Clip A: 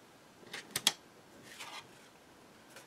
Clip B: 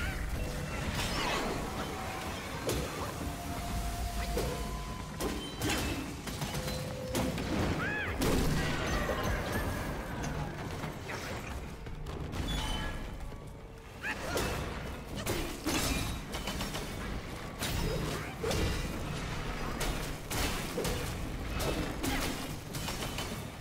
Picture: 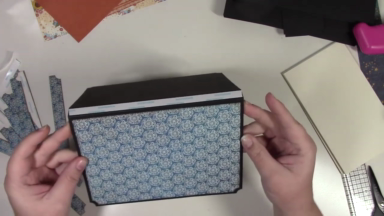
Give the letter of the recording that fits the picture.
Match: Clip A